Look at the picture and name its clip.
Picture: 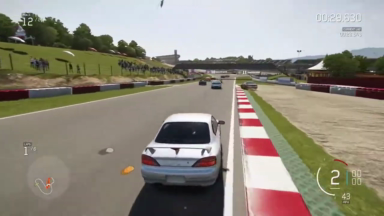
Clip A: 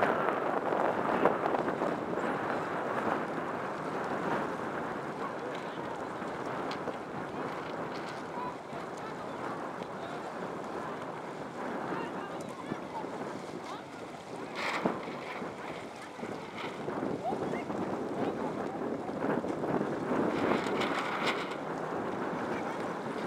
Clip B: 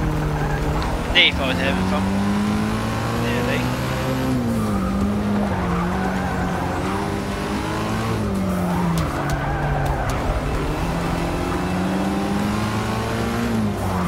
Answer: B